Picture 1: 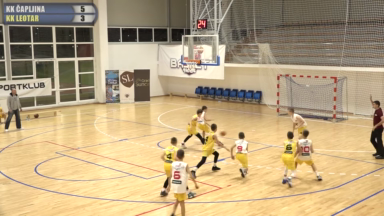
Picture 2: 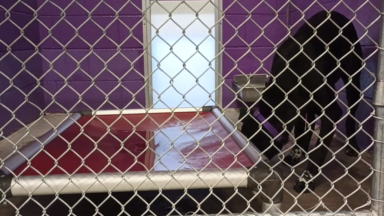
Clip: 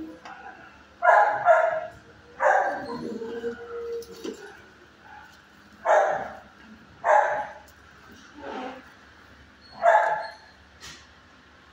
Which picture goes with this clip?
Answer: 2